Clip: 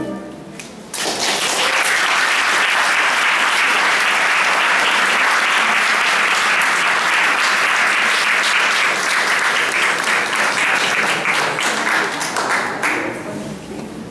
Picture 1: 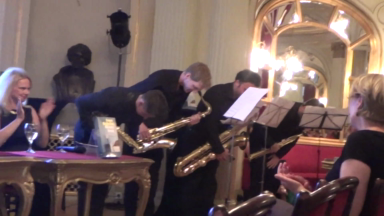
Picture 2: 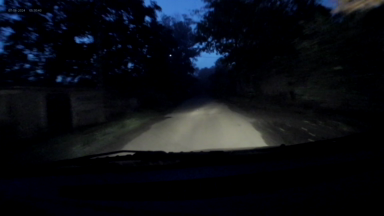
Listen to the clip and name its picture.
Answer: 1